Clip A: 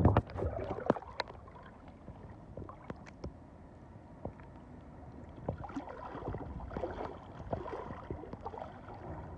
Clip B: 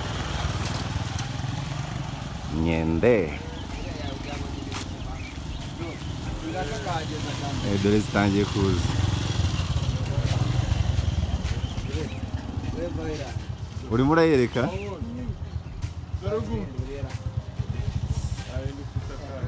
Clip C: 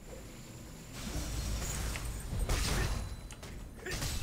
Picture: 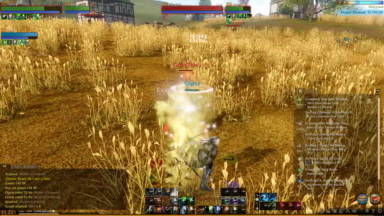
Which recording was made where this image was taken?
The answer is C